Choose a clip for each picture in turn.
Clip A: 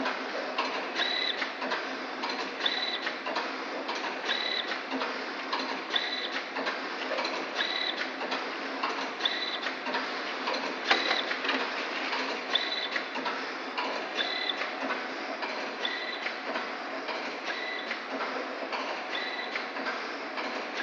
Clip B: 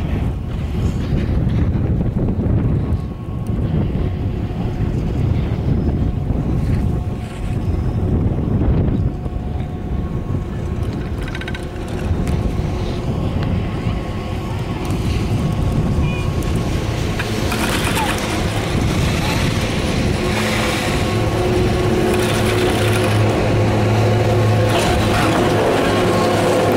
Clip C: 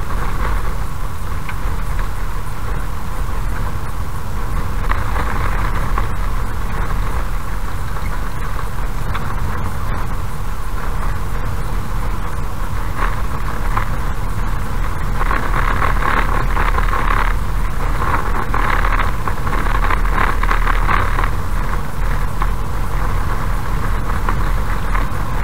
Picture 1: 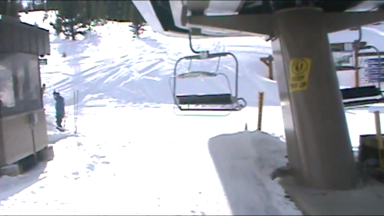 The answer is B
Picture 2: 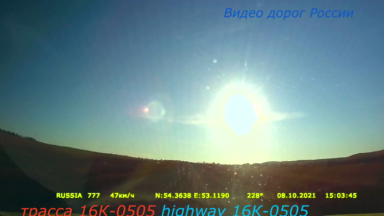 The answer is C